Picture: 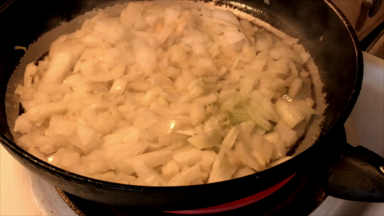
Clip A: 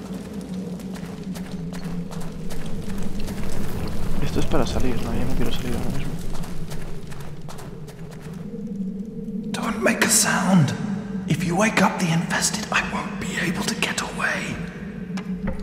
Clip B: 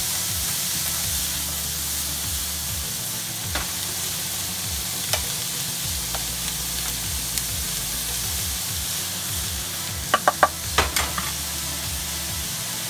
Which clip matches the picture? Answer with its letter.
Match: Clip B